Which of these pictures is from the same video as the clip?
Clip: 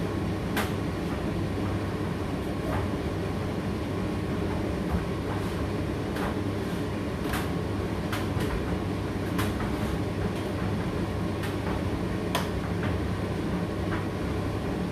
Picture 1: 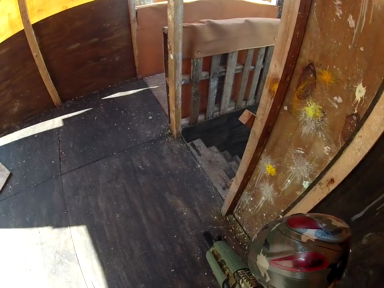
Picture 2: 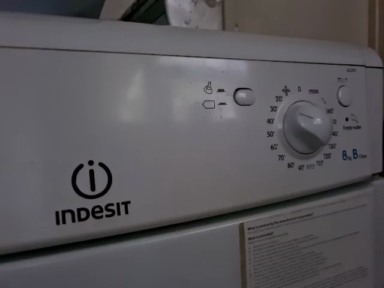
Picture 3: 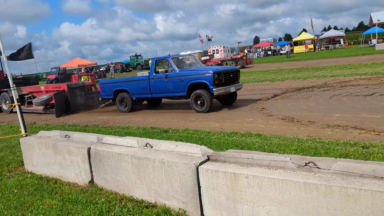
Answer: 2